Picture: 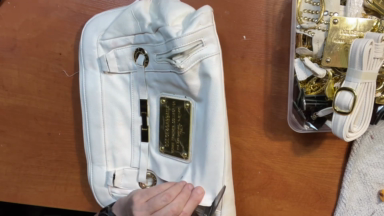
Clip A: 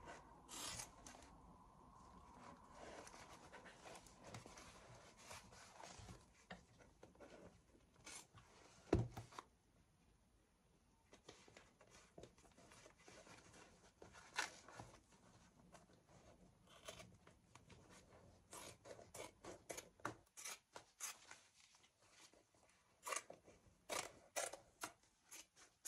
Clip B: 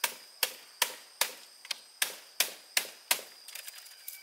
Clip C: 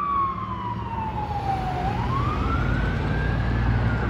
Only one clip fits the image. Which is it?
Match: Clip A